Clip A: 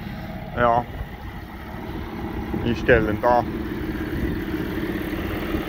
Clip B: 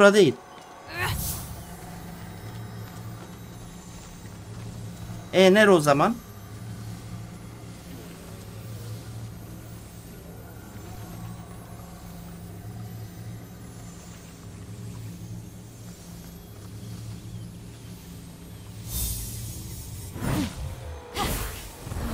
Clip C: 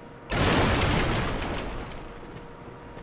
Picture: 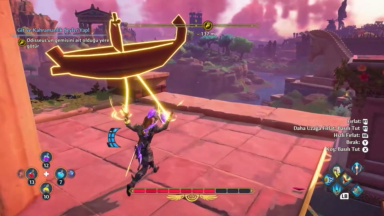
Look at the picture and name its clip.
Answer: B